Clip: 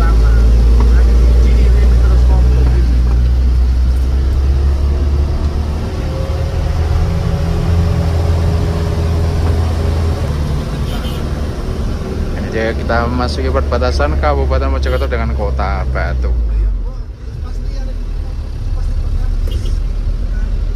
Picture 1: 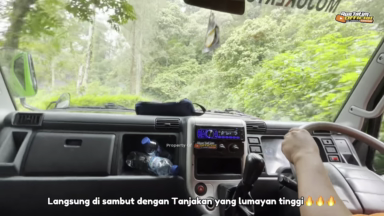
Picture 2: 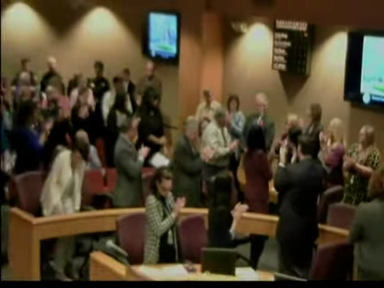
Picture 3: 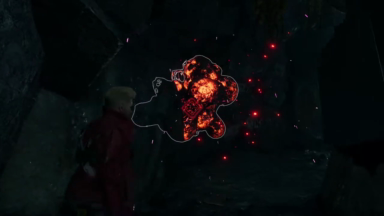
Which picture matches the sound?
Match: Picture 1